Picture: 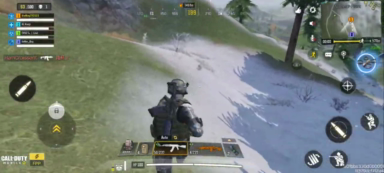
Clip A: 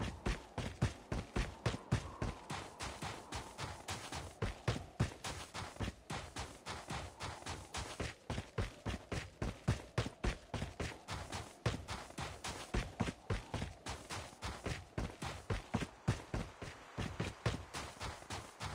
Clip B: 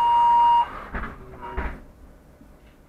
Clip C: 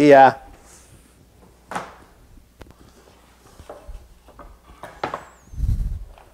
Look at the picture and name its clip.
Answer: A